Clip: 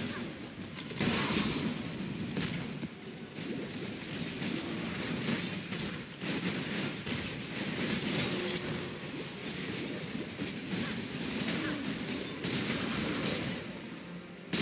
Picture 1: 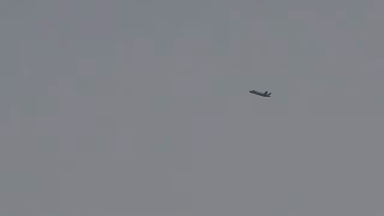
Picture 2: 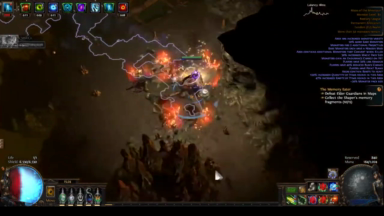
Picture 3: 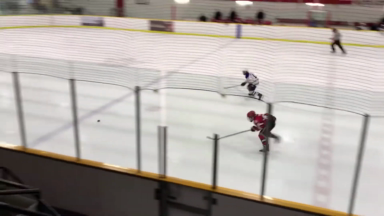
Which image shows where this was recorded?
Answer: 2